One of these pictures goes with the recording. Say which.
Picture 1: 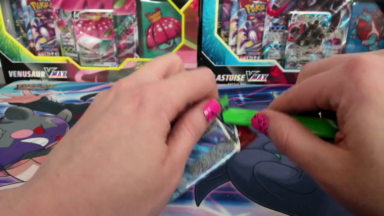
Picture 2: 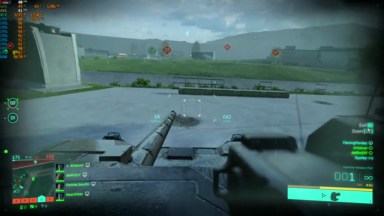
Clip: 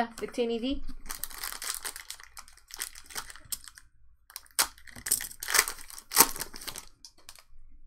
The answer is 1